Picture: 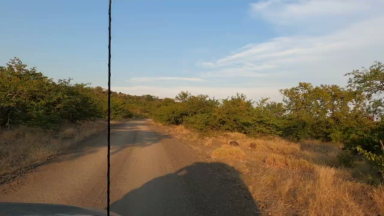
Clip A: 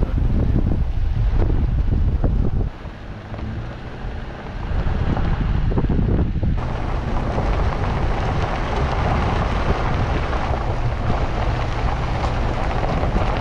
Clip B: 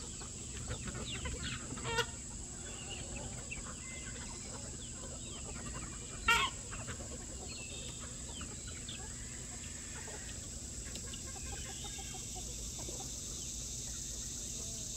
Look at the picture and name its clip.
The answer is A